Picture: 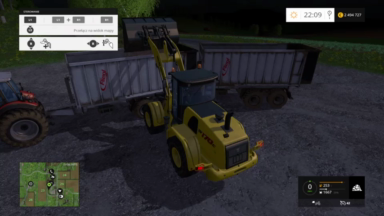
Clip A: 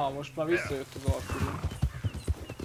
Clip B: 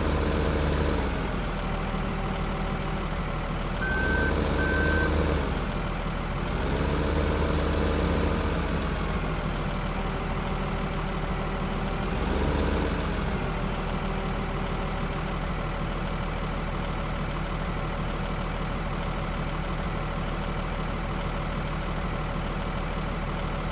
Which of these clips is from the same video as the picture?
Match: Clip B